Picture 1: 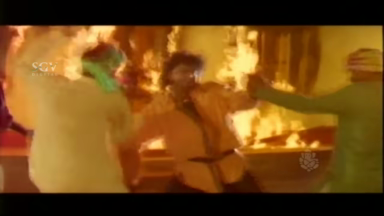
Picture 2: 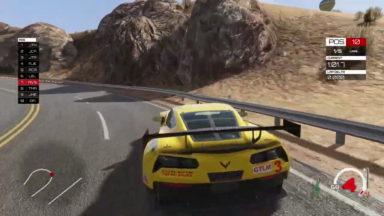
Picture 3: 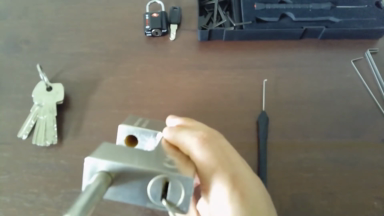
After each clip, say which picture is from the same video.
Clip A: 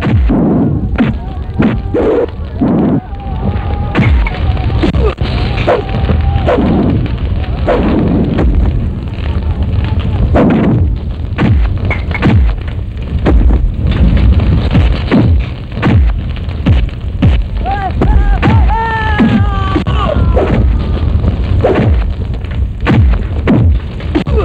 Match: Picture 1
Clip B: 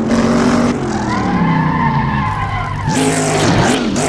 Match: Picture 2